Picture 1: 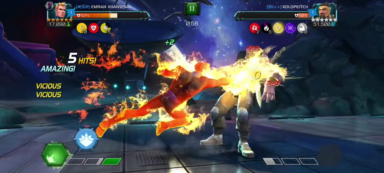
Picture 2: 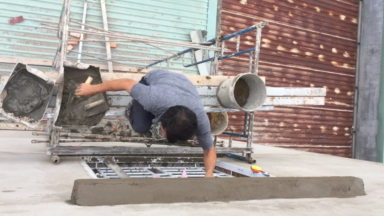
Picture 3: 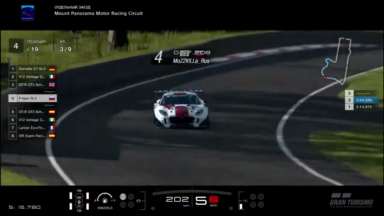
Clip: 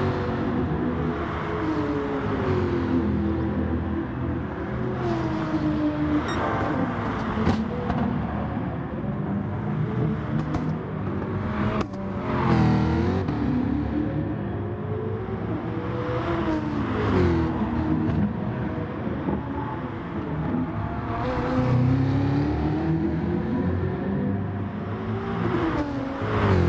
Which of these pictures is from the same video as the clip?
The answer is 3